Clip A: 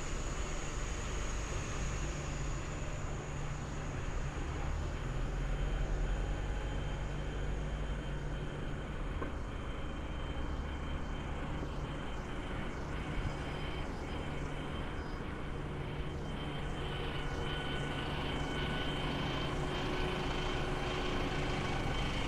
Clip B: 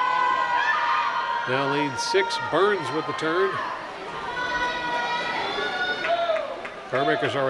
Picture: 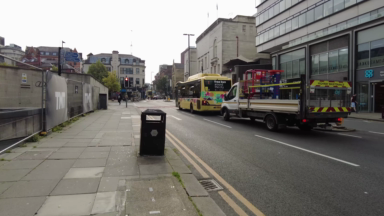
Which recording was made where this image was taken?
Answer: A